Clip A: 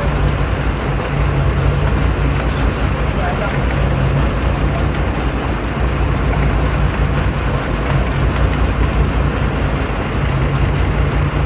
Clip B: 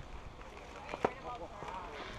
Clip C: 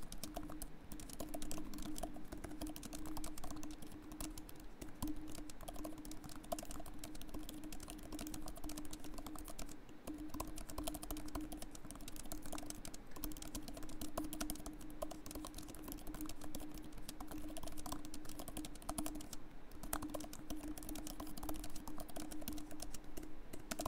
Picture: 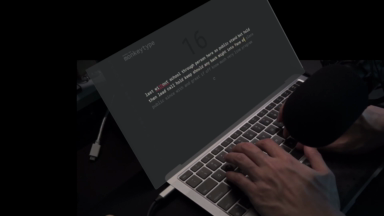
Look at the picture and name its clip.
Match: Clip C